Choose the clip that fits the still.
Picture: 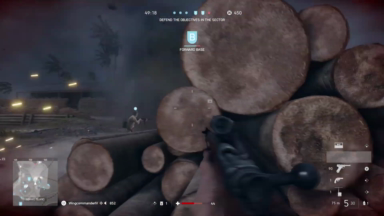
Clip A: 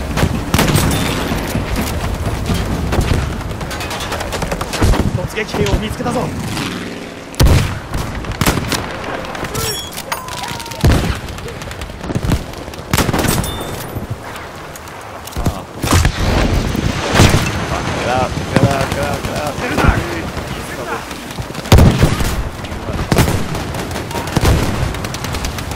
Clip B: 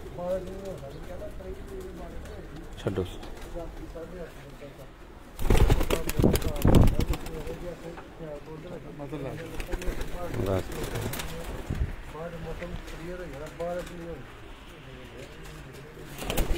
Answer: A